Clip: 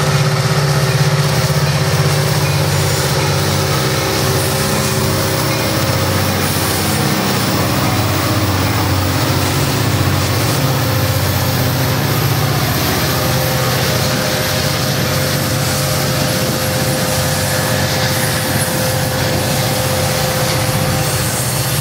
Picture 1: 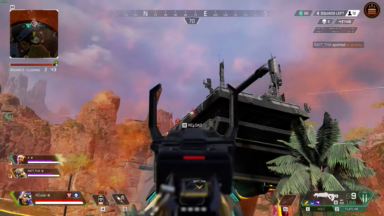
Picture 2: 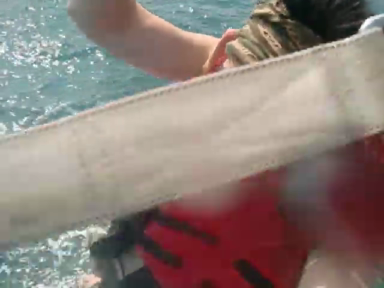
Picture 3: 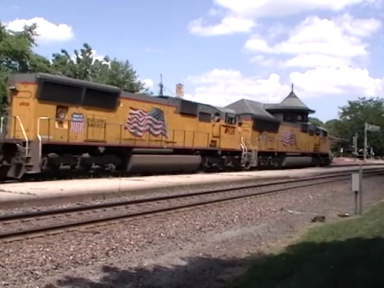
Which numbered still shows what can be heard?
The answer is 3